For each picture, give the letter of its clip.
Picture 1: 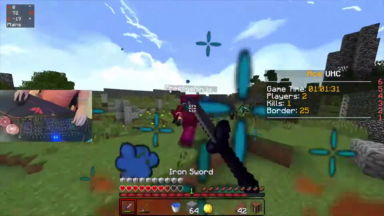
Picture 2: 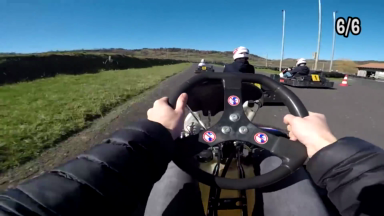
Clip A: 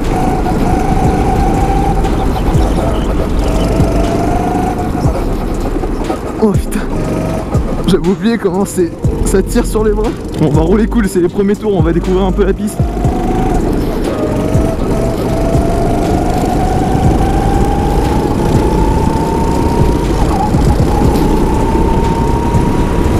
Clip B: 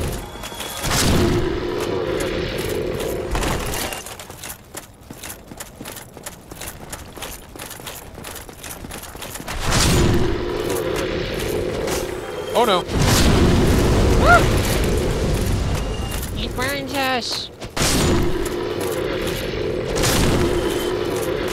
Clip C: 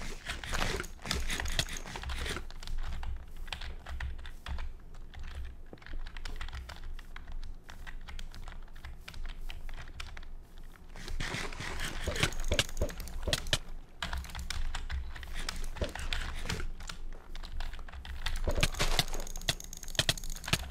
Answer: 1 C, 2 A